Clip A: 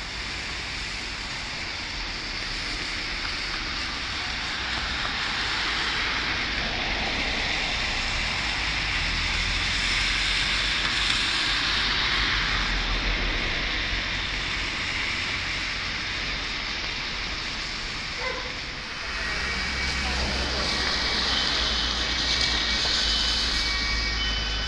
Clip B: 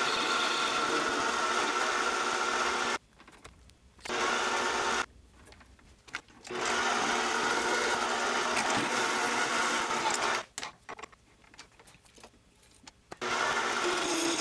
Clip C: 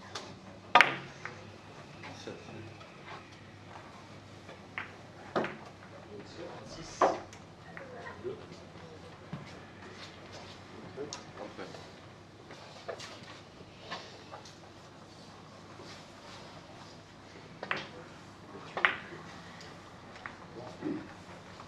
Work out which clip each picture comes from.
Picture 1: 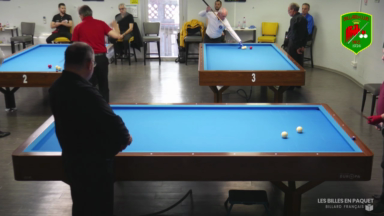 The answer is C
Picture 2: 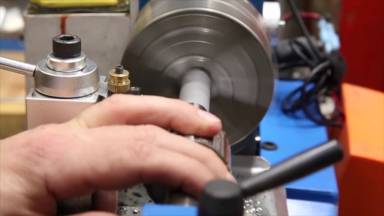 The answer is B